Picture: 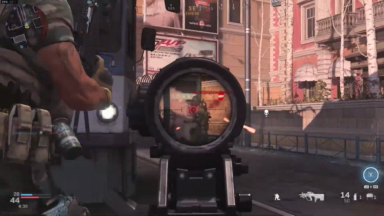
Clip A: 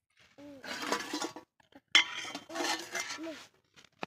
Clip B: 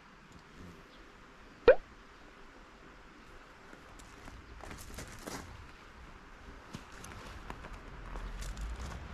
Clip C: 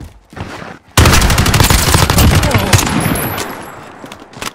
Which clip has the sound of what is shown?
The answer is C